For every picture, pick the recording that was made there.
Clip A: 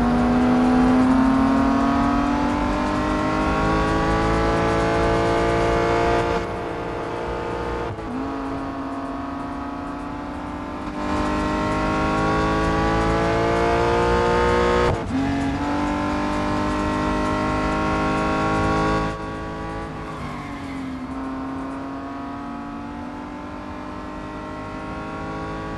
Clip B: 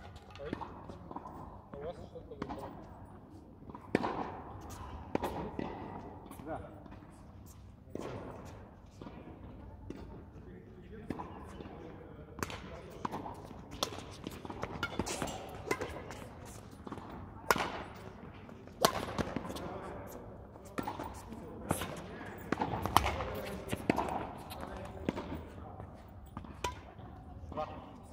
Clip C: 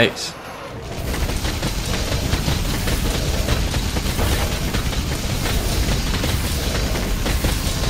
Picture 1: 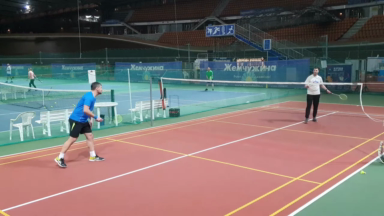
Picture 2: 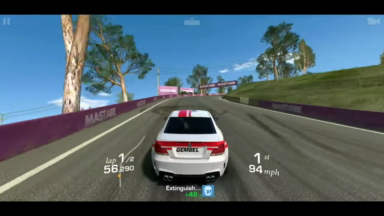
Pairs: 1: B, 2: A